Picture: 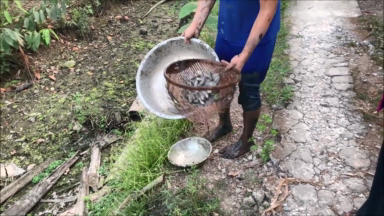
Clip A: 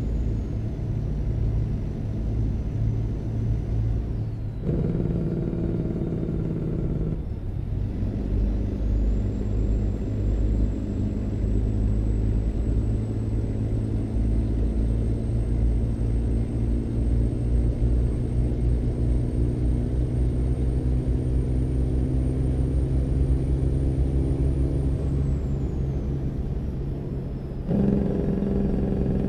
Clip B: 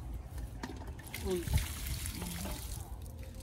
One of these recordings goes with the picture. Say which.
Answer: B